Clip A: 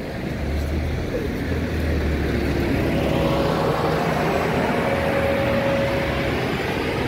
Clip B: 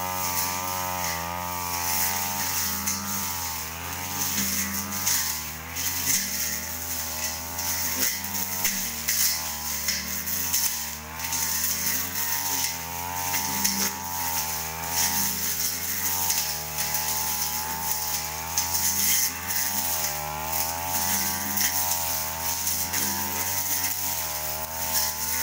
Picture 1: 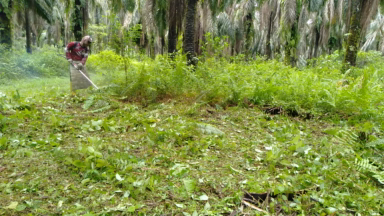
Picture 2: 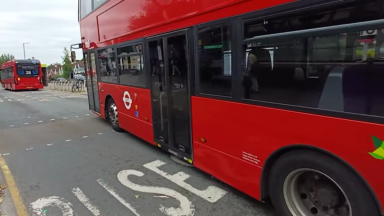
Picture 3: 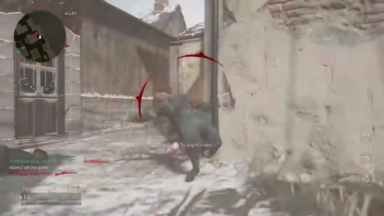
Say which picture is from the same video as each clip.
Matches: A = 2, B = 1